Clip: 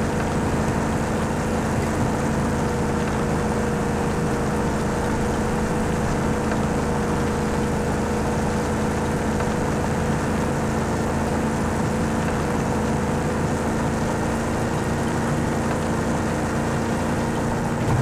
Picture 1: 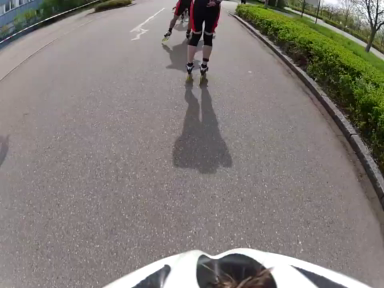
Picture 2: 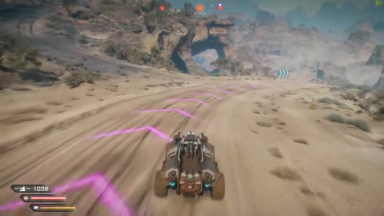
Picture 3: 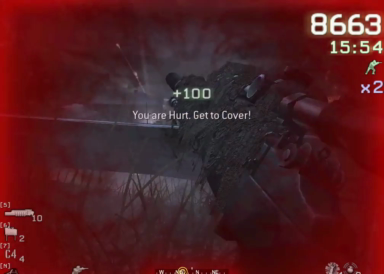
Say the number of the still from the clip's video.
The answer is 2